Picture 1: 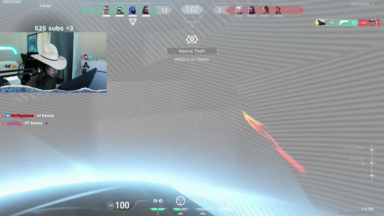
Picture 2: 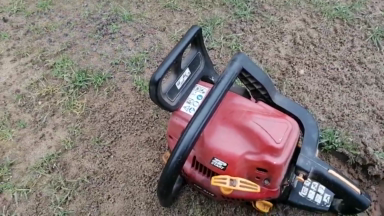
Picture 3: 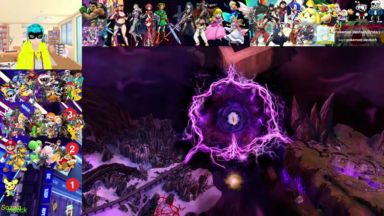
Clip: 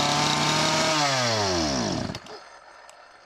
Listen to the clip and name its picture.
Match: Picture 2